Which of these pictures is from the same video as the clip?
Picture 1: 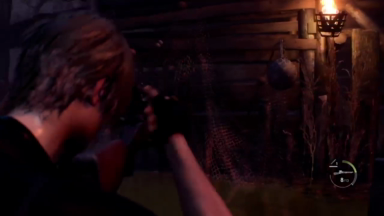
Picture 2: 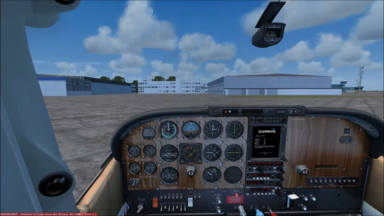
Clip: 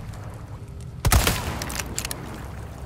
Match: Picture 1